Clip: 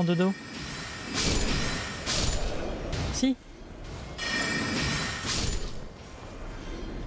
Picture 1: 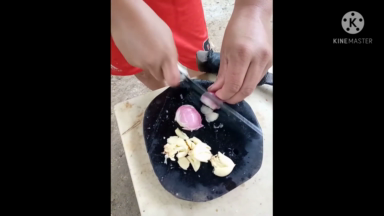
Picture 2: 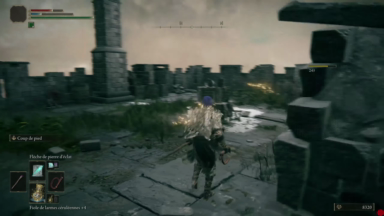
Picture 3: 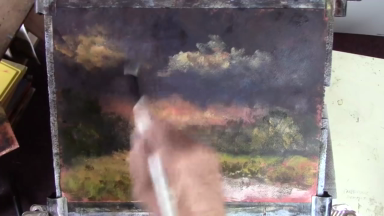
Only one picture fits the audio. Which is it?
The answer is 2